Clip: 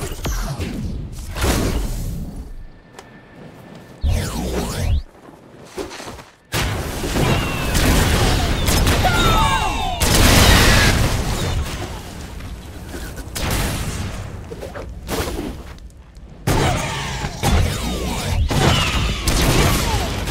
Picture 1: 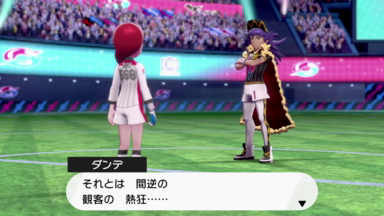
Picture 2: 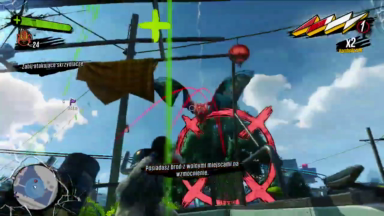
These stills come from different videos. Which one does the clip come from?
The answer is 2